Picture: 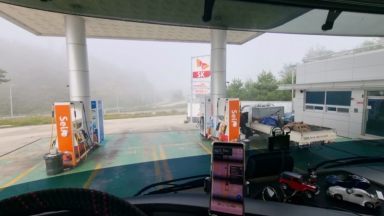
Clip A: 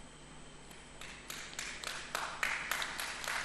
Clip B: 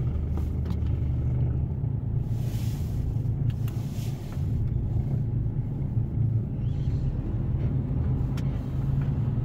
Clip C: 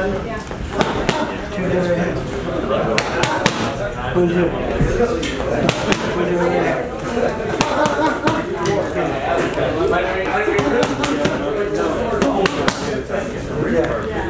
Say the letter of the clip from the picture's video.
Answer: B